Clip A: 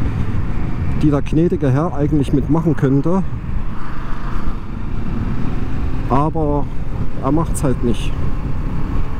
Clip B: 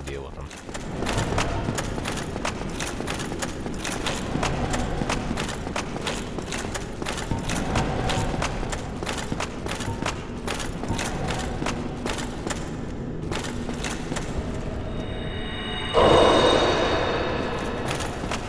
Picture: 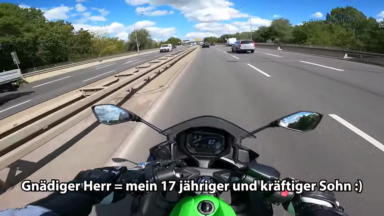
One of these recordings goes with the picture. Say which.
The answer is A